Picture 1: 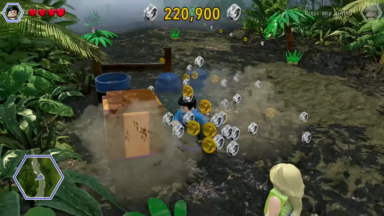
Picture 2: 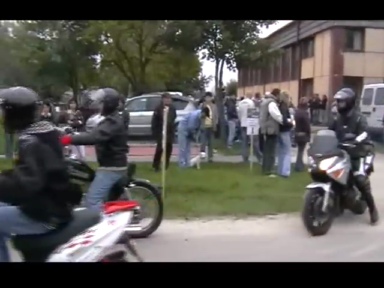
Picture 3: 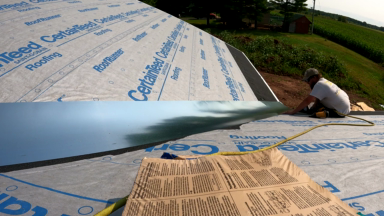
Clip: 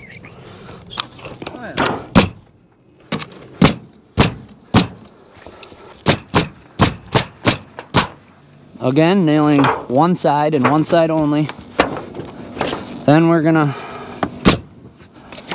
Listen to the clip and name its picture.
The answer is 3